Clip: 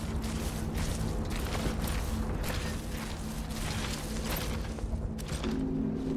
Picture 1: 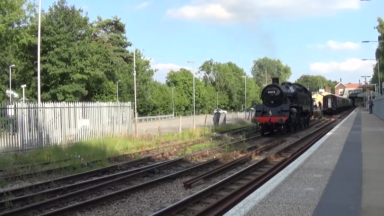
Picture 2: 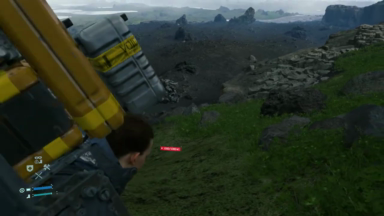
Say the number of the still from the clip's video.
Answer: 2